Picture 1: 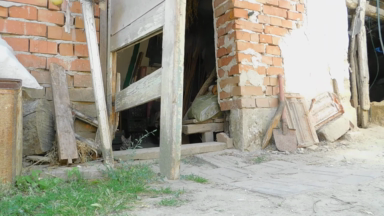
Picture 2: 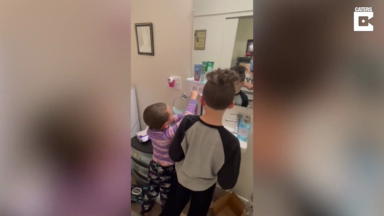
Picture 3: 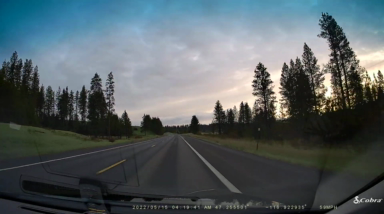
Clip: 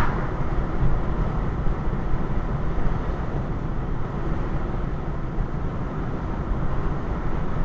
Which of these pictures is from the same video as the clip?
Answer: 3